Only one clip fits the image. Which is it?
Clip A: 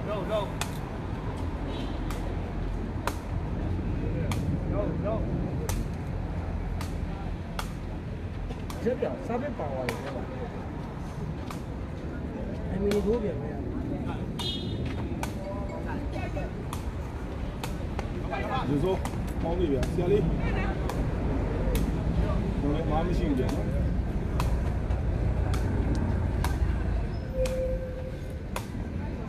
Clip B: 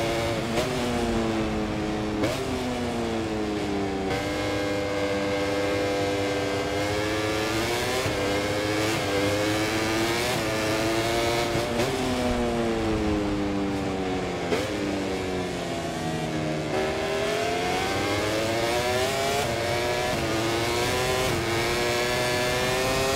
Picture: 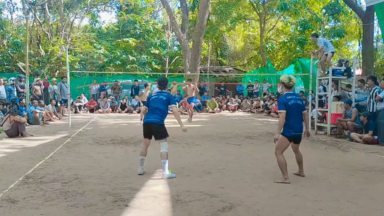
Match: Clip A